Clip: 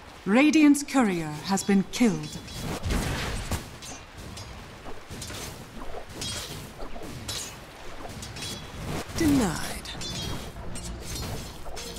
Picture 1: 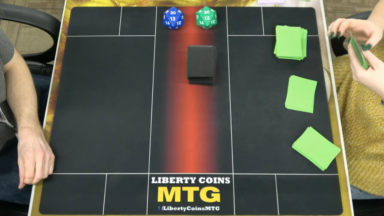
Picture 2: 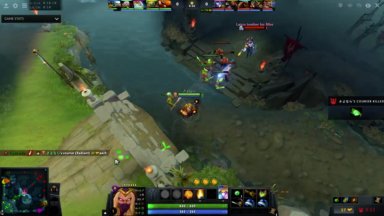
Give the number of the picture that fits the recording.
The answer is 2